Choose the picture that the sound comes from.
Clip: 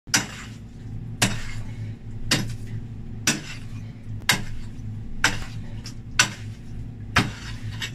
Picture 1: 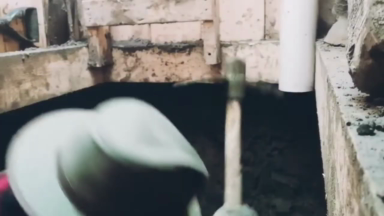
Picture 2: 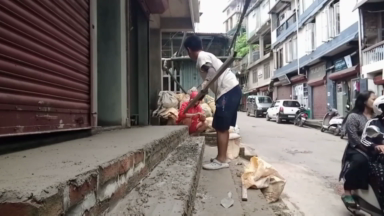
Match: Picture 1